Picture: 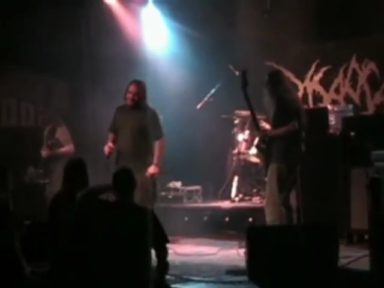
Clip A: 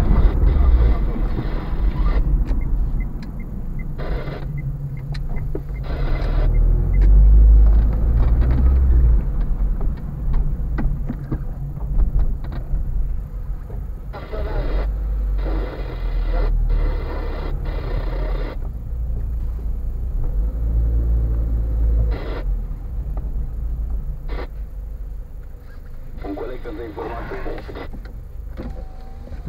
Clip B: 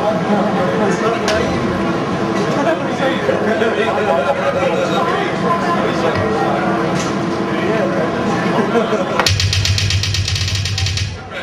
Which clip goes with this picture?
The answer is B